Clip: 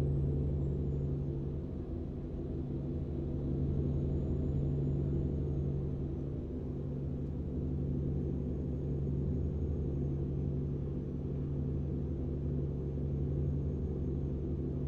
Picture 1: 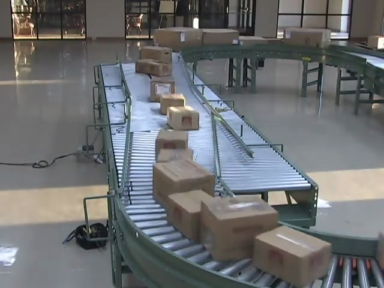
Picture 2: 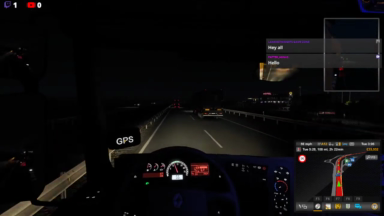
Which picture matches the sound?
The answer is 2